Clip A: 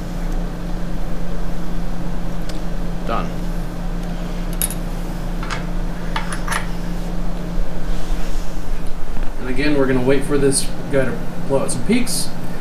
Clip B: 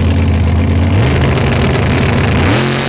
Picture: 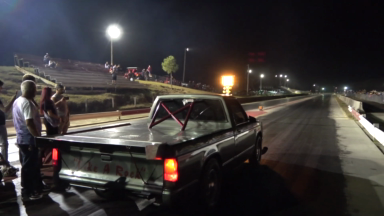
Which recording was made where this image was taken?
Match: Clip B